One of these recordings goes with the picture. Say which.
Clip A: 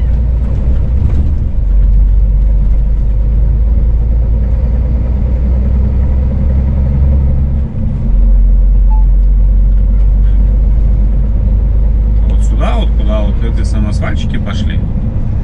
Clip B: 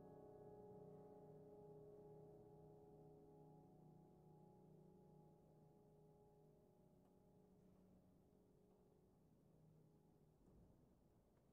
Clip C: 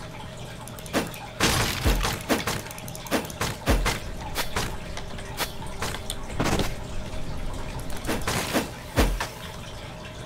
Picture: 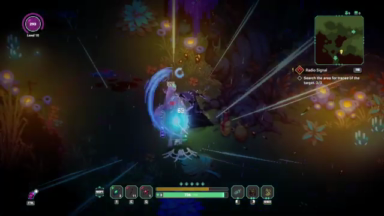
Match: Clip C